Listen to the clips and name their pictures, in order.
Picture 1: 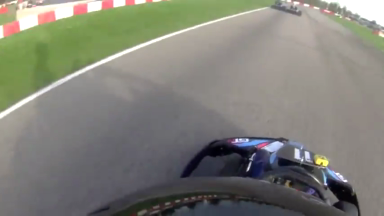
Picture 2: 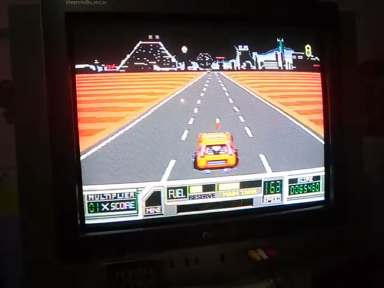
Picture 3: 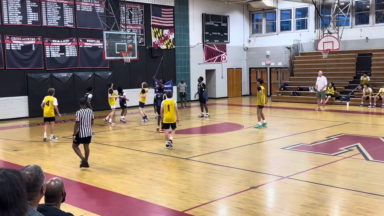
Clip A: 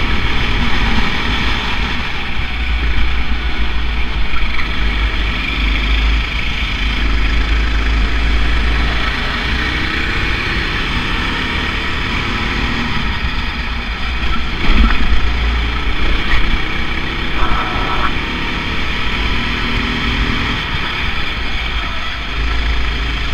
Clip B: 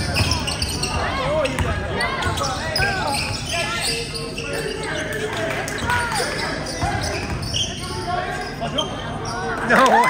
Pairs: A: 1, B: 3